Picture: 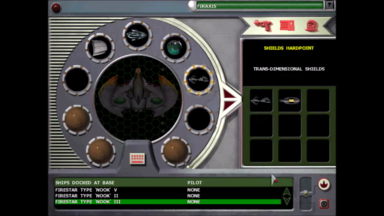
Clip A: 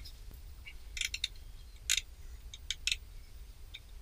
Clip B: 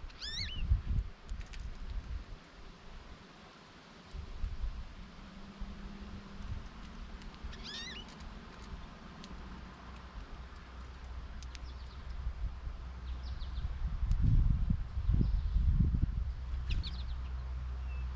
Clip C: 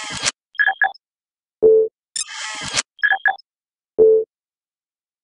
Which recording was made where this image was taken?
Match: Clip C